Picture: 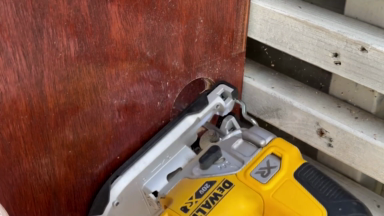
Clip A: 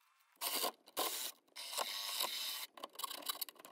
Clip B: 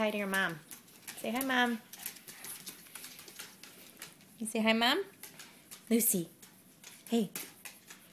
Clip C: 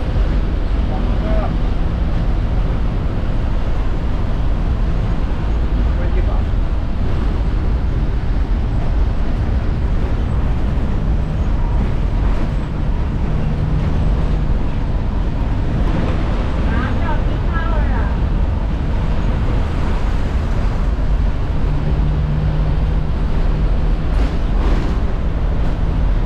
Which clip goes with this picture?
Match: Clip A